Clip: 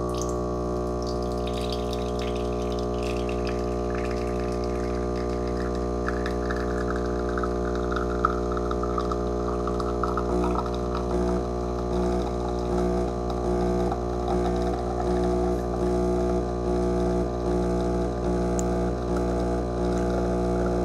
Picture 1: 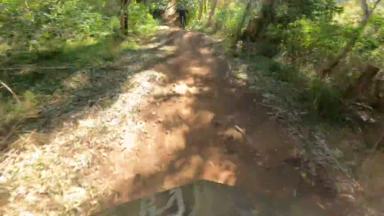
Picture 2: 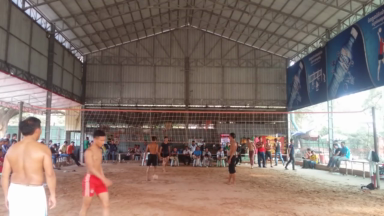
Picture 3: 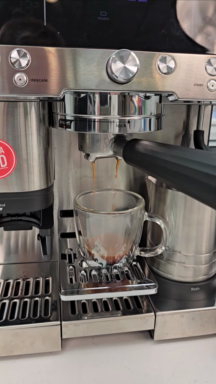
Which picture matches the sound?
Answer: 3